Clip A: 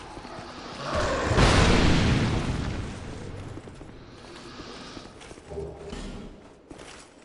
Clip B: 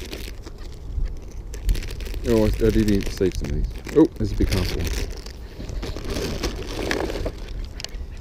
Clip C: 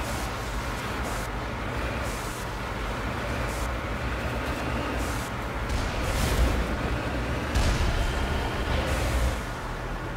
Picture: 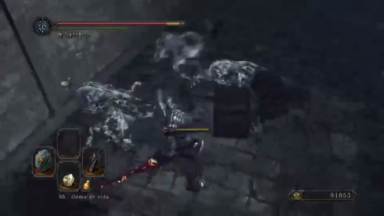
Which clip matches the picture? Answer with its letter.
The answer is A